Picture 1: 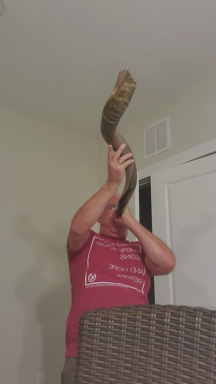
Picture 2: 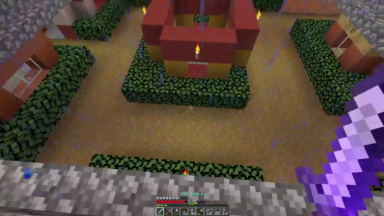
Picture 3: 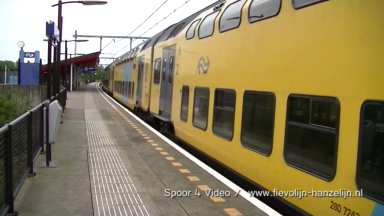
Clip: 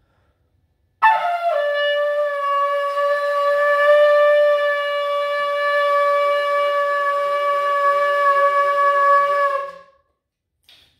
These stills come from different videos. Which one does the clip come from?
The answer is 1